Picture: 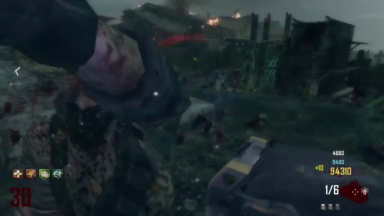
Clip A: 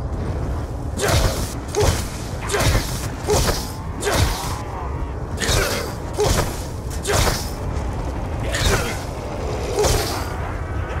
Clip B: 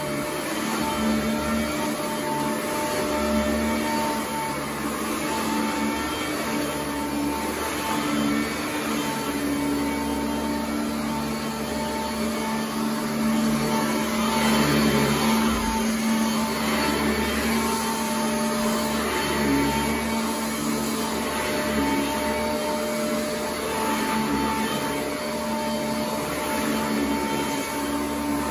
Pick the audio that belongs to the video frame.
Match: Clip A